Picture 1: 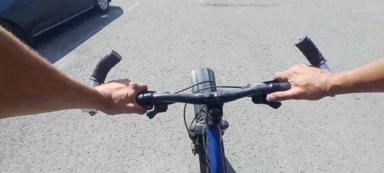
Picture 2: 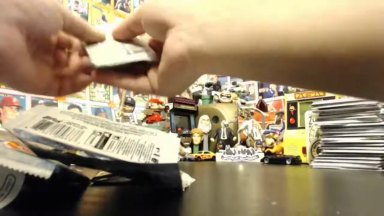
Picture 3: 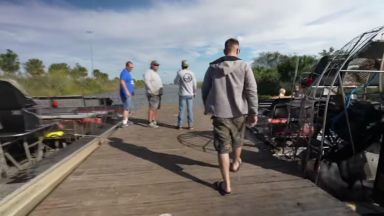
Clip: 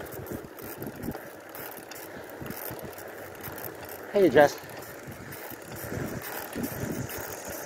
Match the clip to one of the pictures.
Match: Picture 1